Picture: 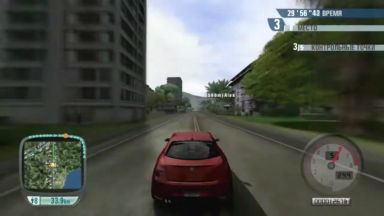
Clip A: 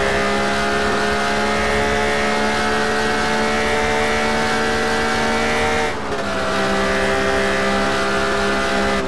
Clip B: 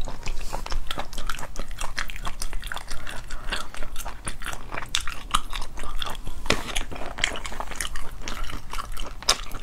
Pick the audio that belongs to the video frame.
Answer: A